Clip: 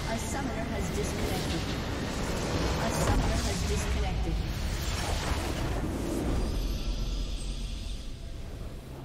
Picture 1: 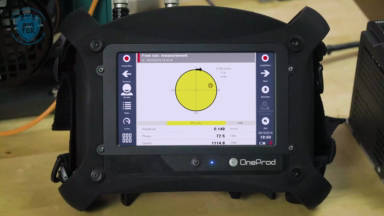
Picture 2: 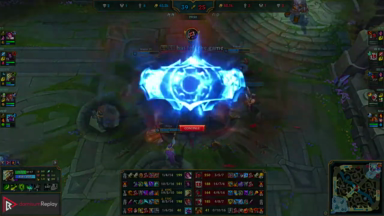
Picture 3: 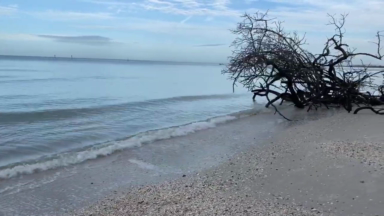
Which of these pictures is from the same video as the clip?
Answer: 2